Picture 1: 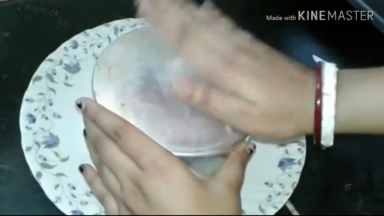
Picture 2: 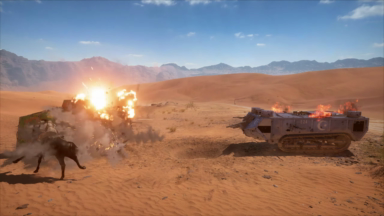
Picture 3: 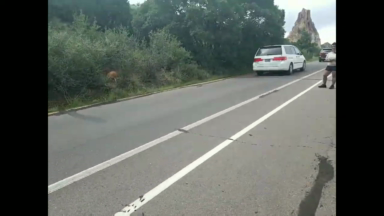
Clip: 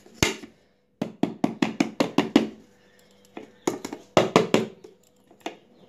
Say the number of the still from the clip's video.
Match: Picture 1